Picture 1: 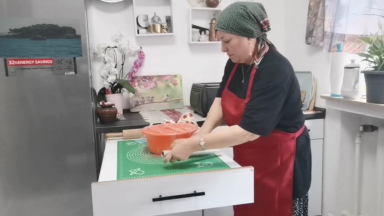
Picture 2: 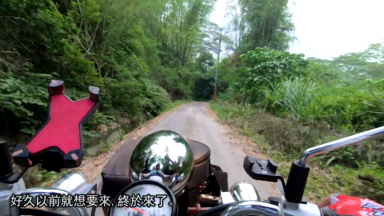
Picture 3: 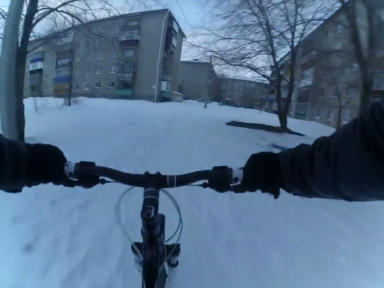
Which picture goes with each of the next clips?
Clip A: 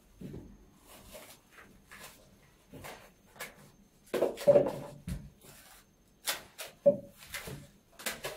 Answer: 1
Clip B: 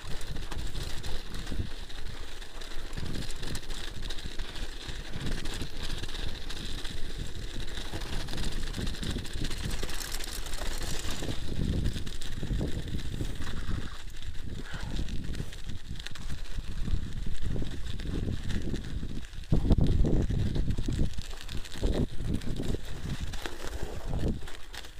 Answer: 3